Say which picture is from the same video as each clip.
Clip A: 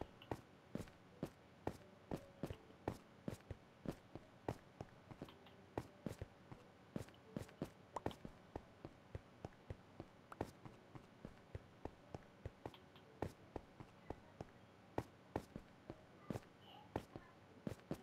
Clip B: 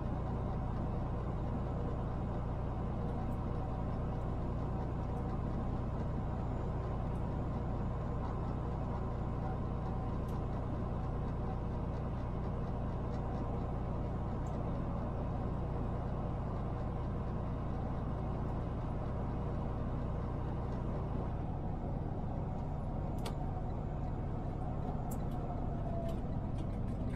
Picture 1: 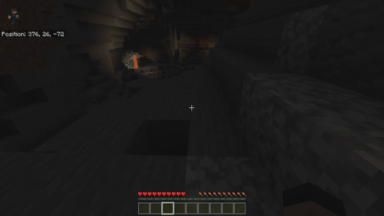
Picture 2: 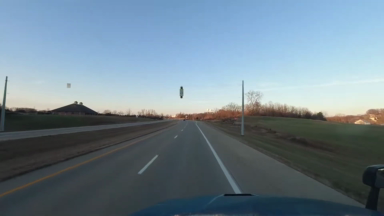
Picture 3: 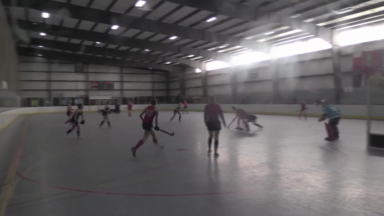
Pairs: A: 1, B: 2